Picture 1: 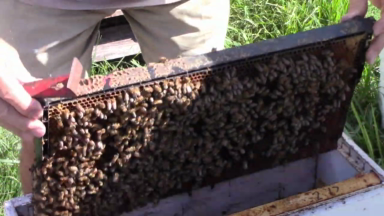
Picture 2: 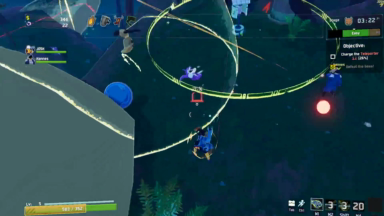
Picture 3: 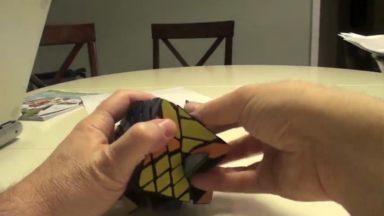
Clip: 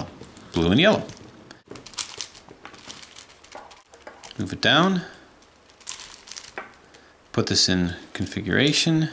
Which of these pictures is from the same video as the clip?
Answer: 3